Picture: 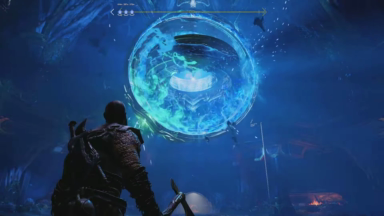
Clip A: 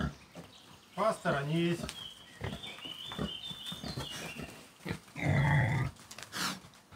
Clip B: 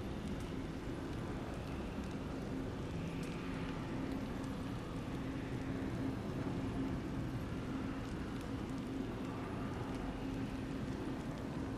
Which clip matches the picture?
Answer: B